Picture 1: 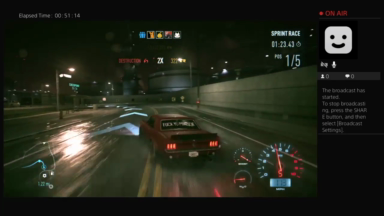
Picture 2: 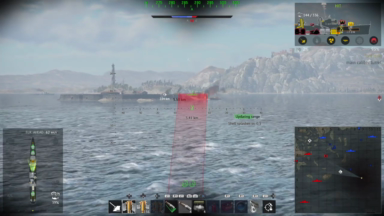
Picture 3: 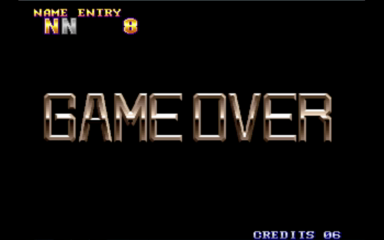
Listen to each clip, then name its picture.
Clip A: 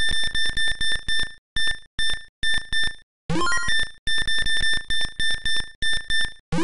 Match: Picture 3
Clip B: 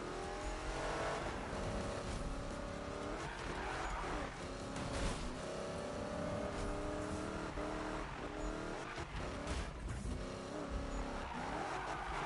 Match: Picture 1